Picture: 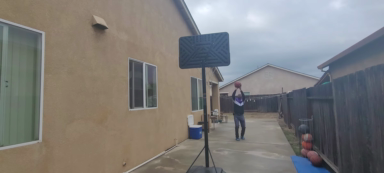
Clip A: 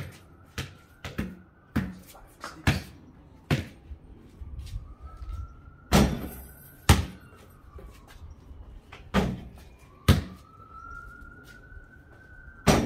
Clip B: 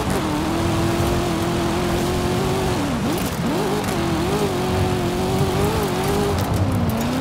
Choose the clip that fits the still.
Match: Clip A